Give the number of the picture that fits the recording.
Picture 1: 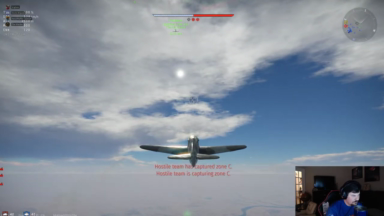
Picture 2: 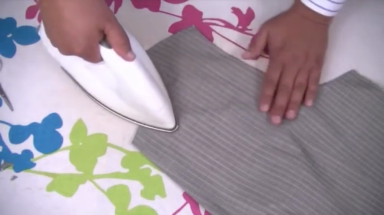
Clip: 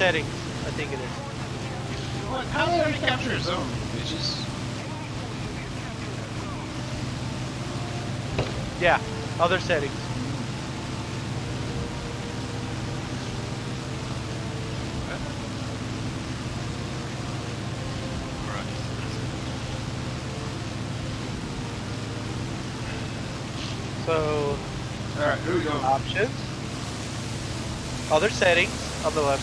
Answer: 1